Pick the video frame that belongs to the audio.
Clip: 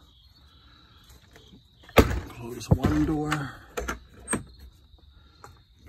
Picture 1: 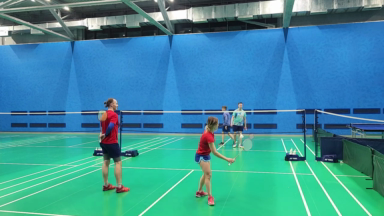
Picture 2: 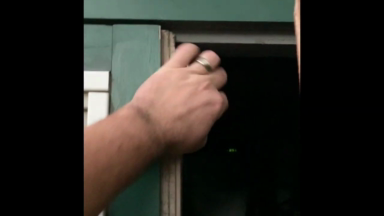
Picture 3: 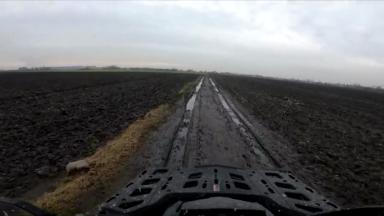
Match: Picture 2